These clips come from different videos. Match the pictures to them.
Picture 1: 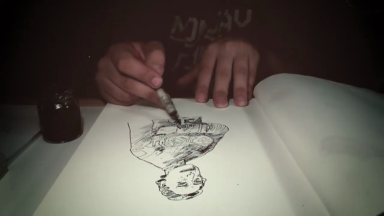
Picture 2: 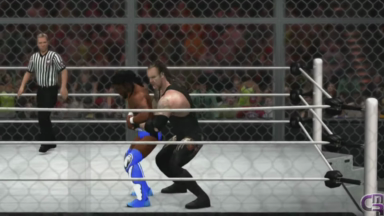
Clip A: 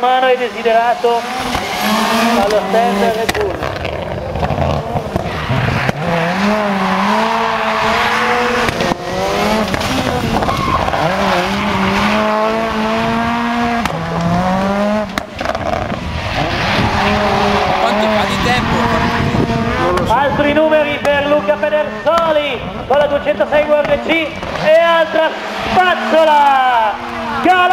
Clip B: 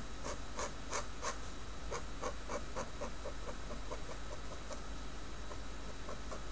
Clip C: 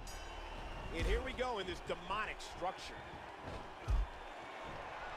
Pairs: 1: B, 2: C